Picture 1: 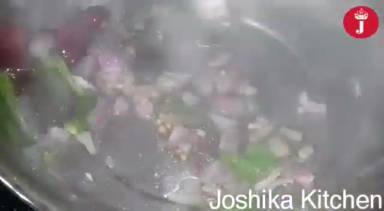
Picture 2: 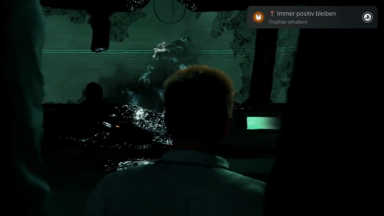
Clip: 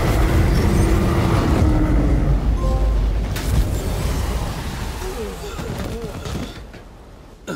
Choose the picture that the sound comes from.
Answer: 2